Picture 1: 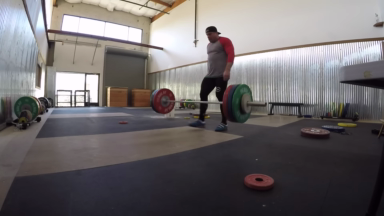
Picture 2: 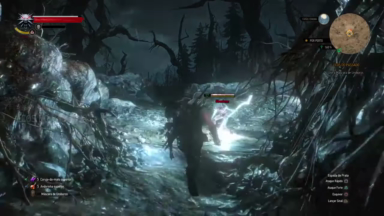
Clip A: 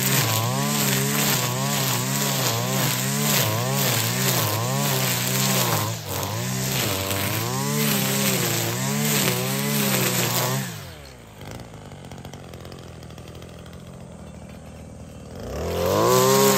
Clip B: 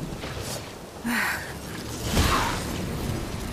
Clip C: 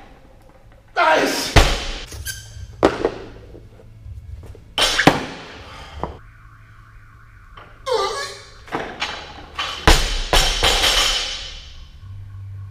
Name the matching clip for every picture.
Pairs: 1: C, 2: B